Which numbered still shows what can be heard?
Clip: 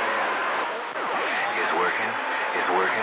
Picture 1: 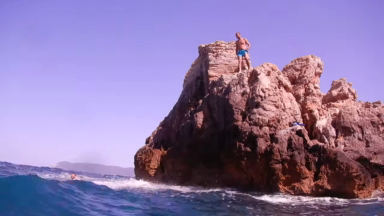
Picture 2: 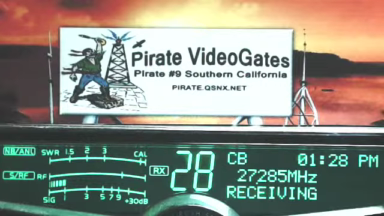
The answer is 2